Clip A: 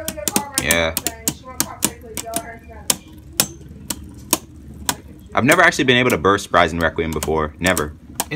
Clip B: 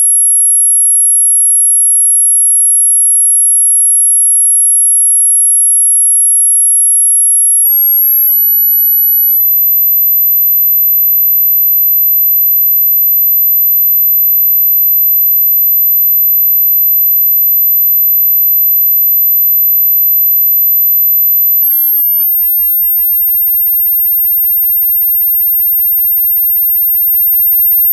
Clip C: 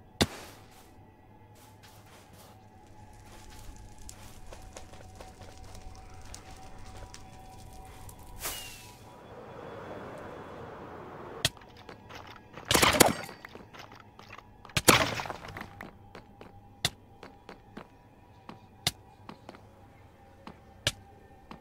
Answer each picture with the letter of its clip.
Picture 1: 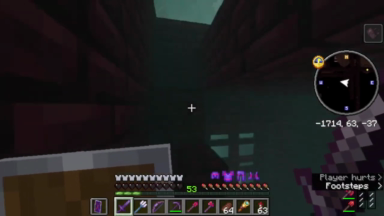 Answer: C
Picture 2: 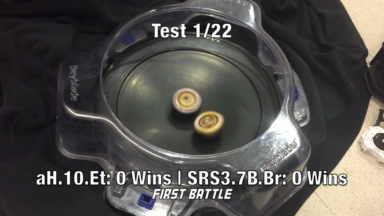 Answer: A